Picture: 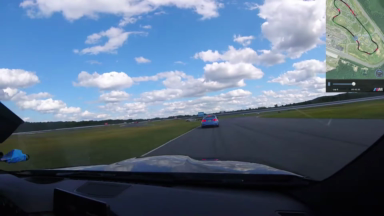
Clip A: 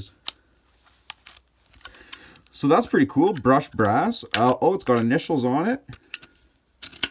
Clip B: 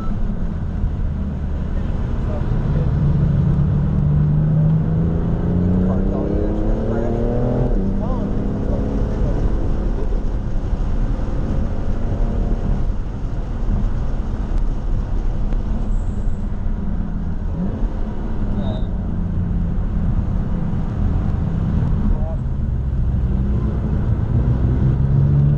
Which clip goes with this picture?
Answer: B